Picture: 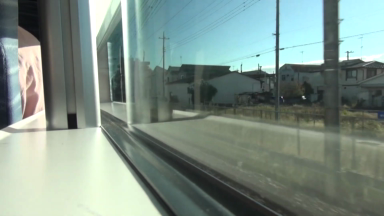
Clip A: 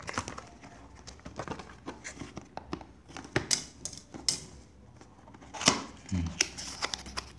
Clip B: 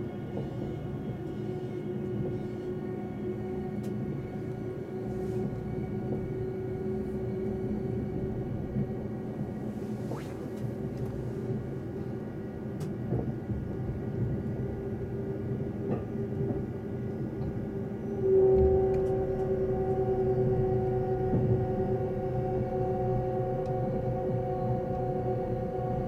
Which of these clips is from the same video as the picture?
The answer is B